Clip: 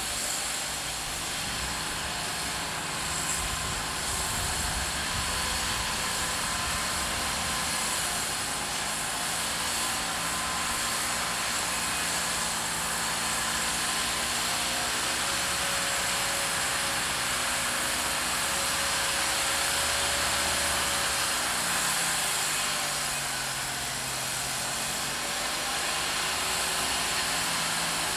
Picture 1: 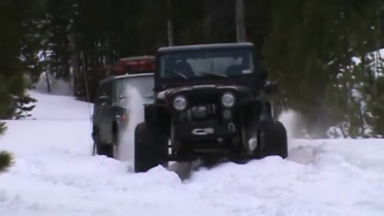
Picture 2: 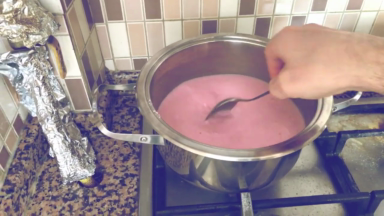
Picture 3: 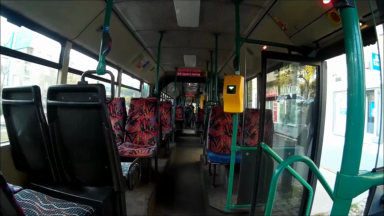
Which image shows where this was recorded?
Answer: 1